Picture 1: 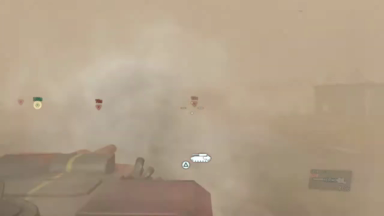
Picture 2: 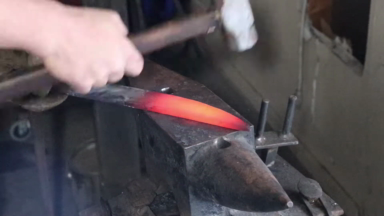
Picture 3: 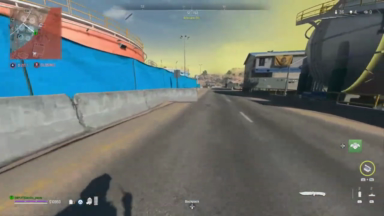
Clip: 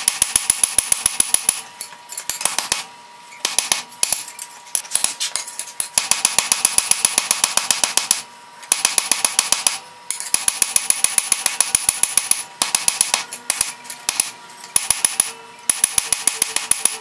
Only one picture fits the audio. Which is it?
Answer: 2